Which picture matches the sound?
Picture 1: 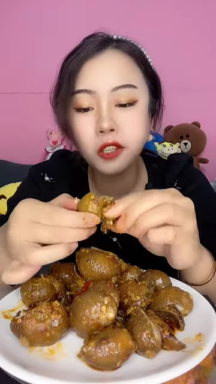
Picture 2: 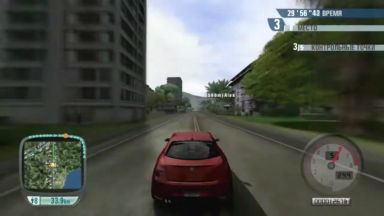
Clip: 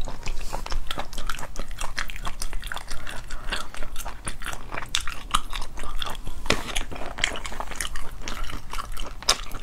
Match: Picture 1